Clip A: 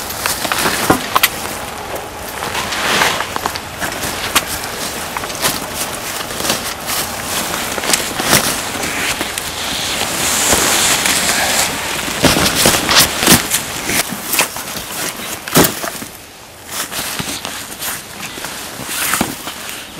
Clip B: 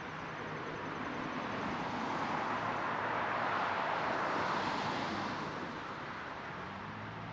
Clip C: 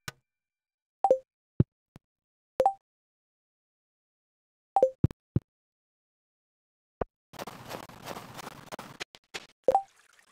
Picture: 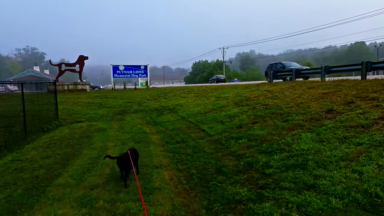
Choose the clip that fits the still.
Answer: B